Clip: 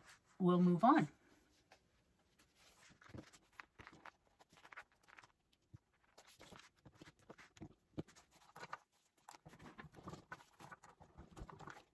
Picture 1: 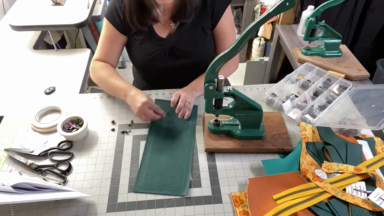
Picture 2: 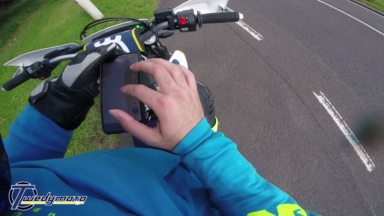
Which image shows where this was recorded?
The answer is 1